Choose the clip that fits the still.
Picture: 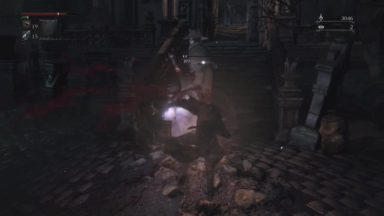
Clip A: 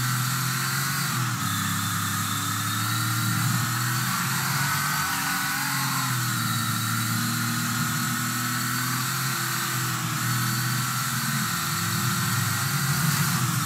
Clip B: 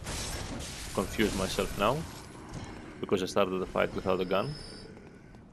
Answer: B